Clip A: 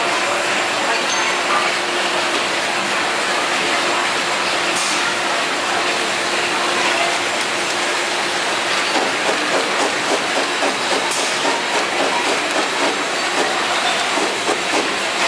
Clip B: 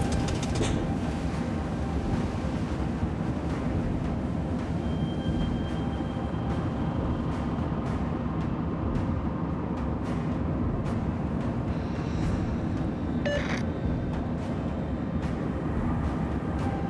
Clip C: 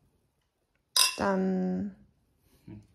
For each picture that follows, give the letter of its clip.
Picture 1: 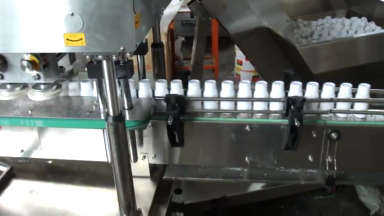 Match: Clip A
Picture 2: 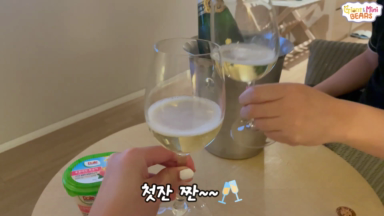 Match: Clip C